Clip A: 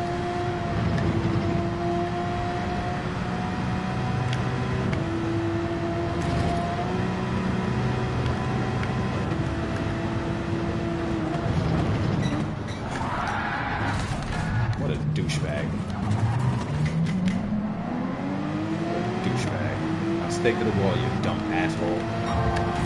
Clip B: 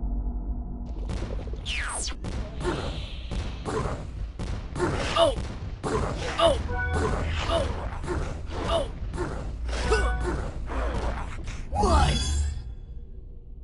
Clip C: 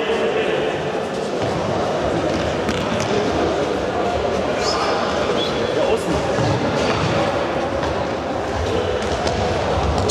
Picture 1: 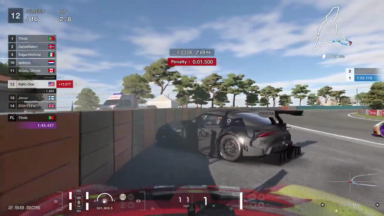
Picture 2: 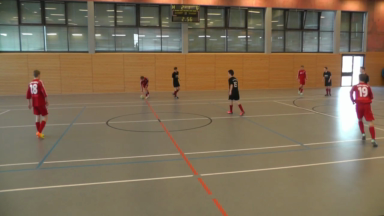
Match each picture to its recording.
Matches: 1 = A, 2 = C